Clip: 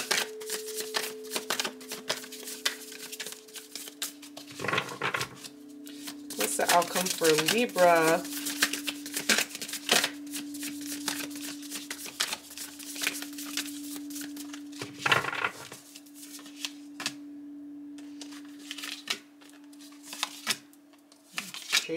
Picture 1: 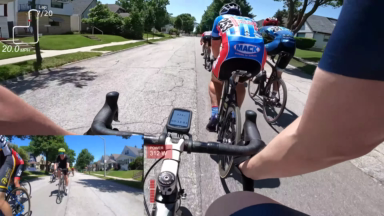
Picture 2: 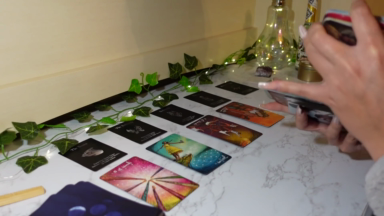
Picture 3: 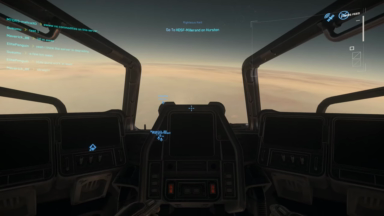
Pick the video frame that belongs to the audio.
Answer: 2